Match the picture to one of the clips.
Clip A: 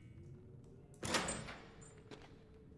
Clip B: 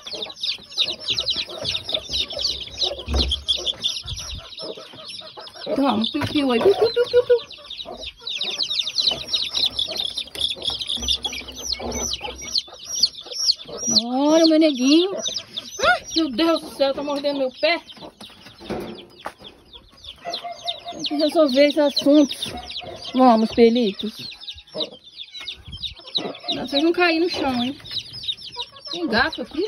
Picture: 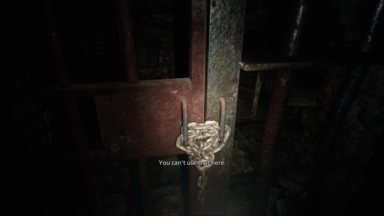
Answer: A